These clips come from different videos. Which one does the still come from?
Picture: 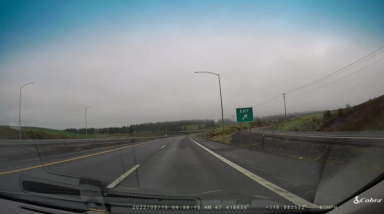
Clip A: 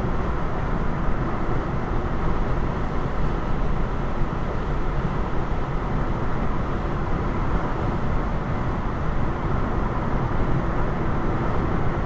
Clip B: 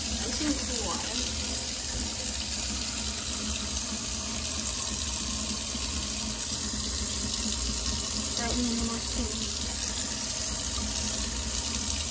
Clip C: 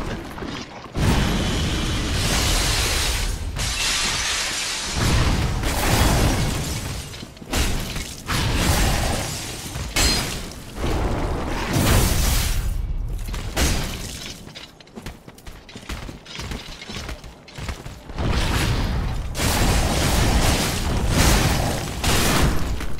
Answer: A